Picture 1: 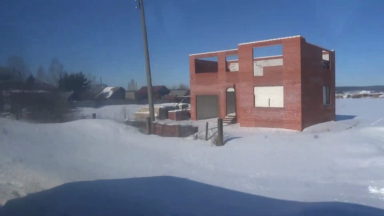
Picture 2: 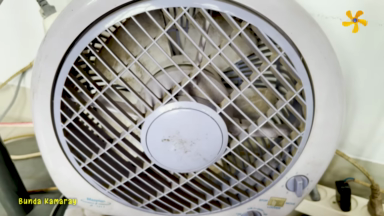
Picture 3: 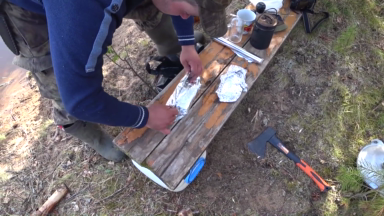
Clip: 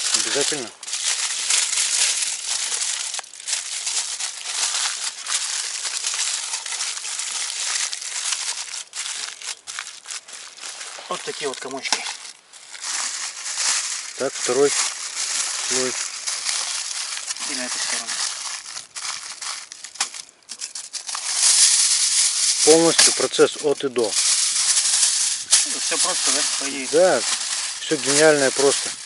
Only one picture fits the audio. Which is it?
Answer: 3